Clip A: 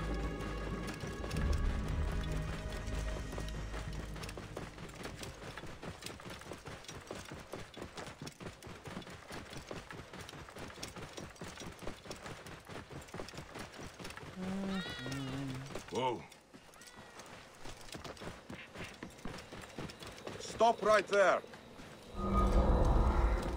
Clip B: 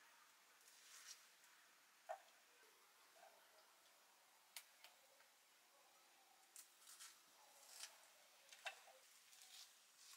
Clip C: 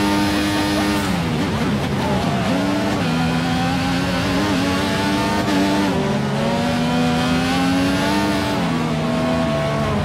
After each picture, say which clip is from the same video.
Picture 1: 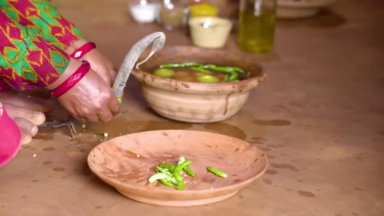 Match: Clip B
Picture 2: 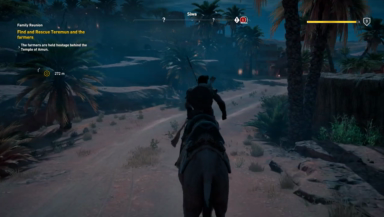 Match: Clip A